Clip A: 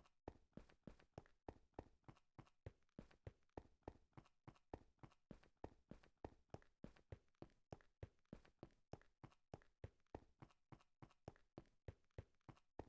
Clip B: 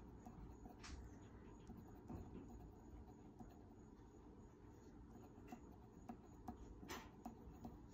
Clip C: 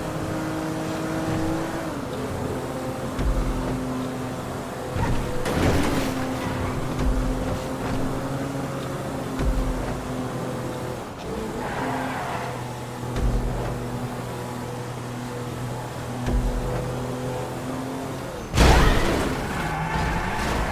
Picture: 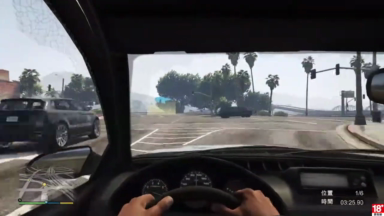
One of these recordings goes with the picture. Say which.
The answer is C